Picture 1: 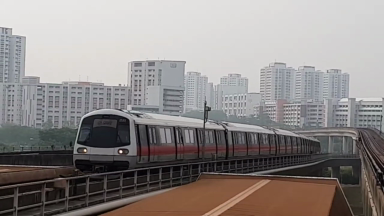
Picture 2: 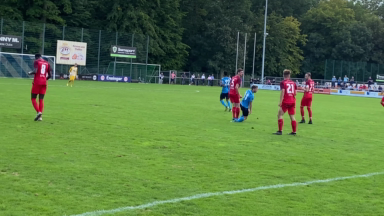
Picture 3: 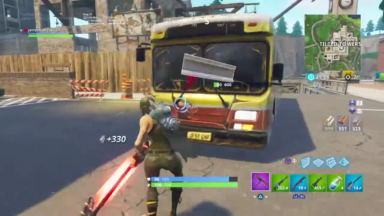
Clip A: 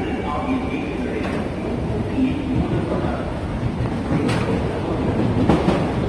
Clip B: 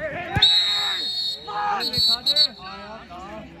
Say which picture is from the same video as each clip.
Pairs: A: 1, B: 2